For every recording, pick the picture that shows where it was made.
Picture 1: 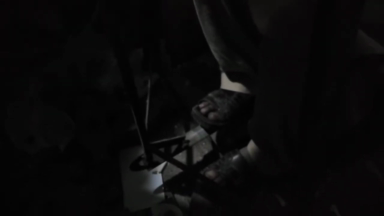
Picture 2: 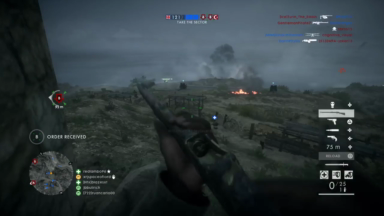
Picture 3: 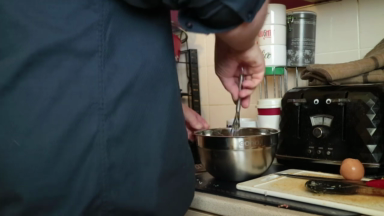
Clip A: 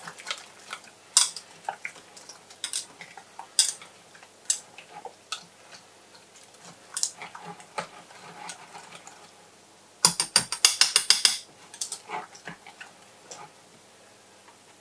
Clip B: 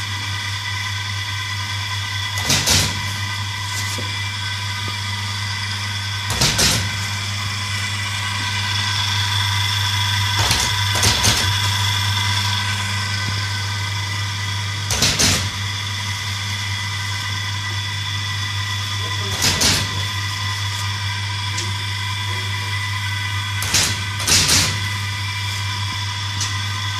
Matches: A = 3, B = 1